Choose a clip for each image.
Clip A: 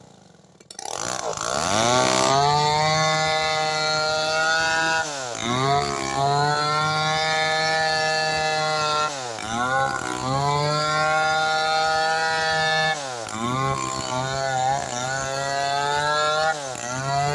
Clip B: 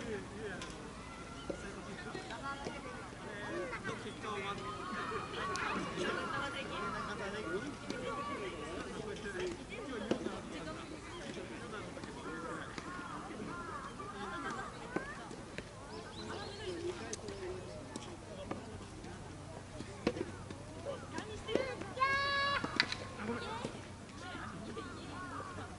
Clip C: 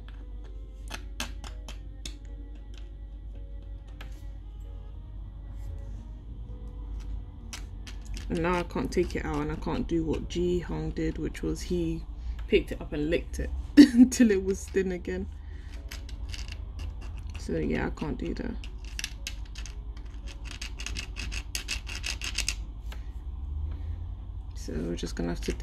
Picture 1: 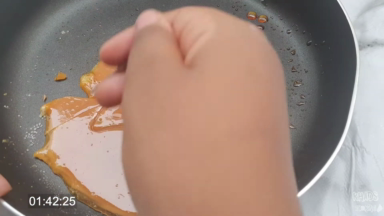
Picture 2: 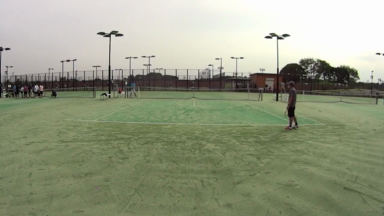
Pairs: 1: C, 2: B